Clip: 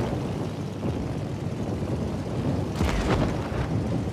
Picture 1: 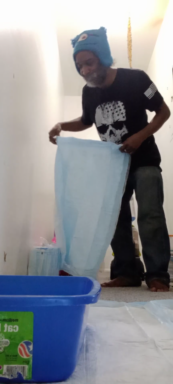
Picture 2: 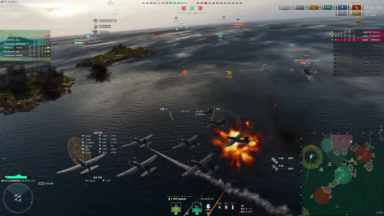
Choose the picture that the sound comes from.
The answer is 2